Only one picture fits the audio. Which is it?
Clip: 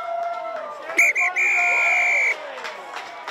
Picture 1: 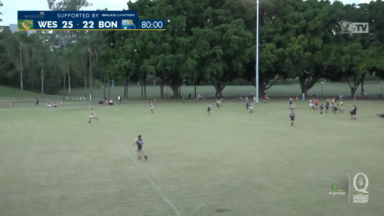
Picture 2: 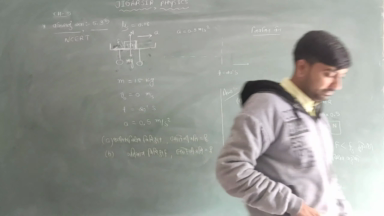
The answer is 1